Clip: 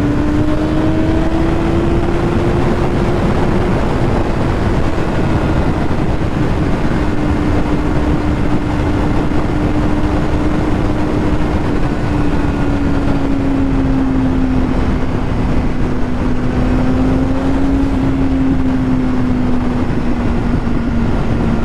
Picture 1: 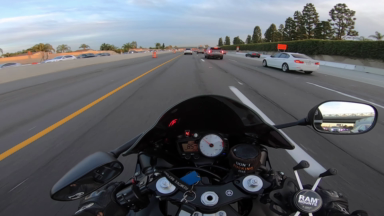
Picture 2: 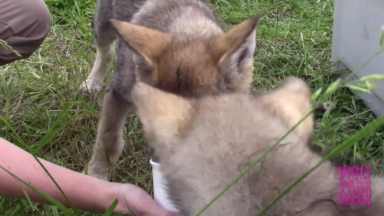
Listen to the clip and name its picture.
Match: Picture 1